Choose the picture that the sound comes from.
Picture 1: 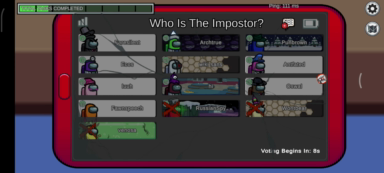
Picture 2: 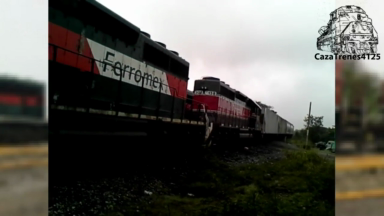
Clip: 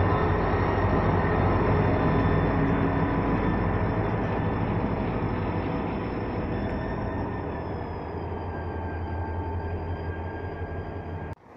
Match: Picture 2